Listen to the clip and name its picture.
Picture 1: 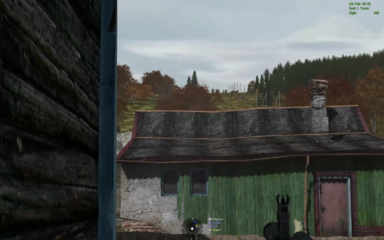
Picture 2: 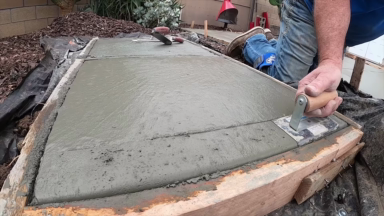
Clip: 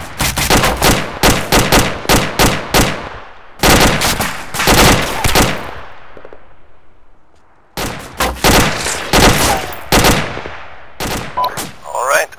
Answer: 1